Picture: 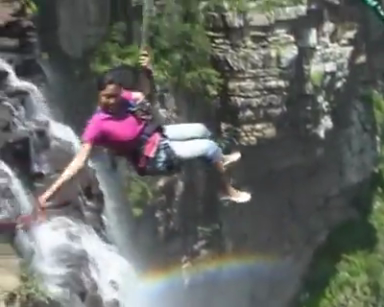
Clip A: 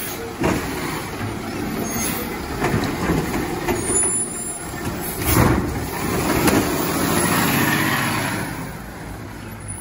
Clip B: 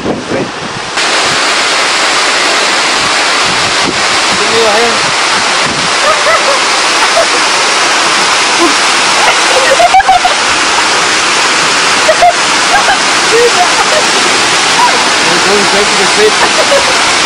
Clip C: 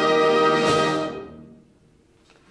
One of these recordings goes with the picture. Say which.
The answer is B